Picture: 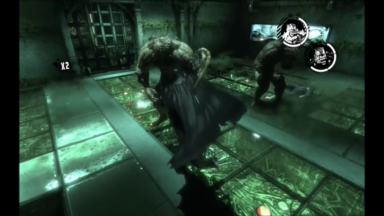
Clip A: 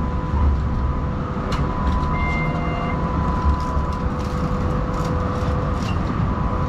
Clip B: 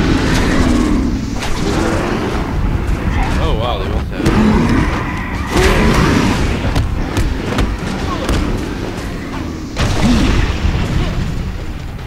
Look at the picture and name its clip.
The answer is B